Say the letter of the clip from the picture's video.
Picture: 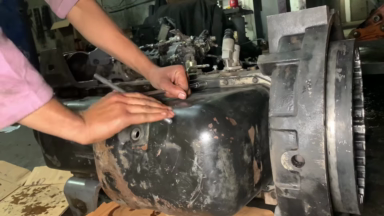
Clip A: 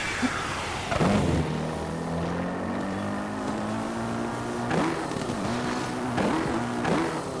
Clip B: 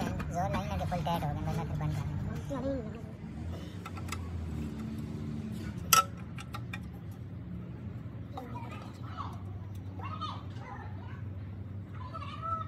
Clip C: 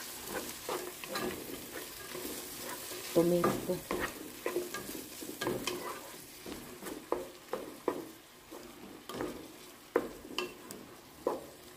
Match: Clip B